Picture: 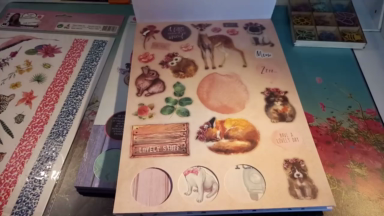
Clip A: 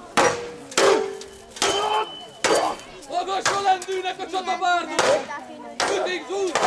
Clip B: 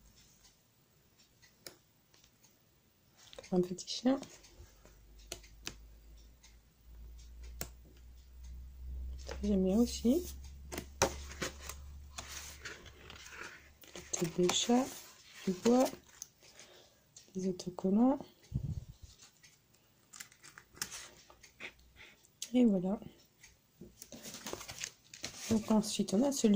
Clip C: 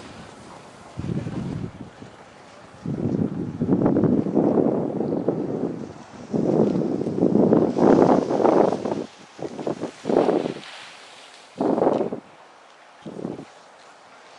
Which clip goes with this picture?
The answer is B